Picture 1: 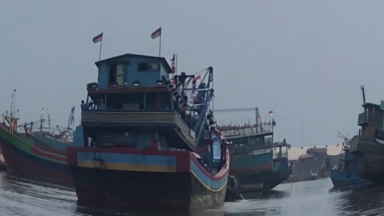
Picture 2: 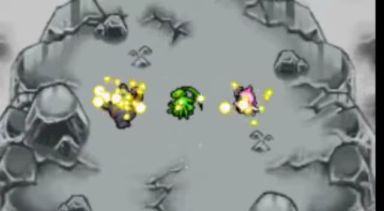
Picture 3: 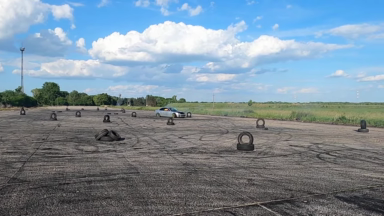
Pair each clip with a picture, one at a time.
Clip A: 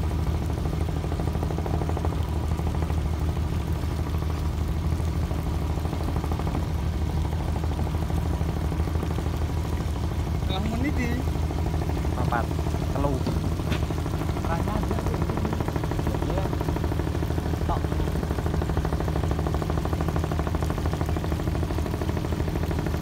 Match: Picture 1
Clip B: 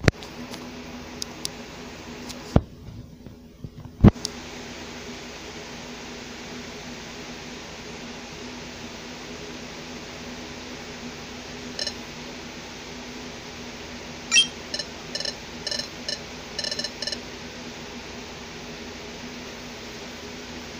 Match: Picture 2